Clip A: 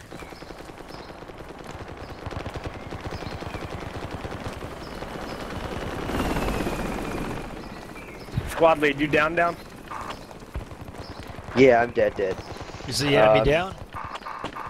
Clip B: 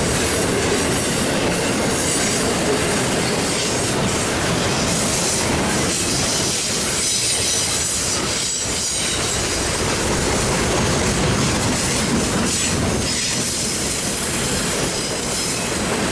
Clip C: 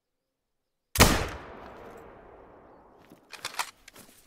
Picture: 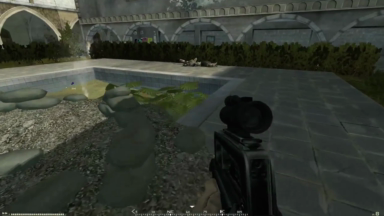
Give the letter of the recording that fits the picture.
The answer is A